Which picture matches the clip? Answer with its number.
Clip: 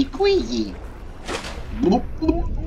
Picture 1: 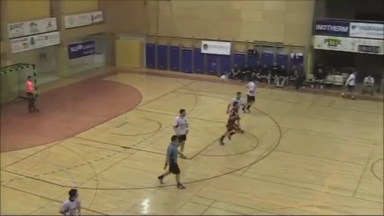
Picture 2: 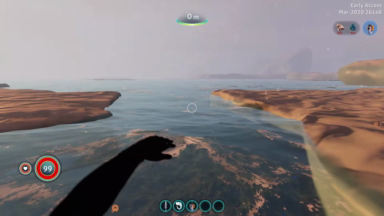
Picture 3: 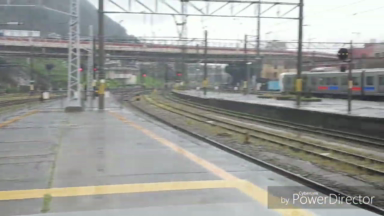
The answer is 2